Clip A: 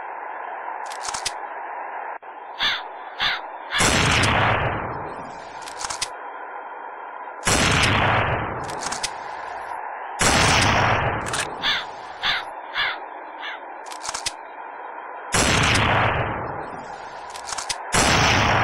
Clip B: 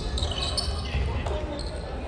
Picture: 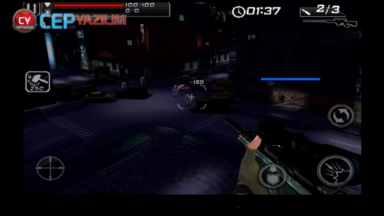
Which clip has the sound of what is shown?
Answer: A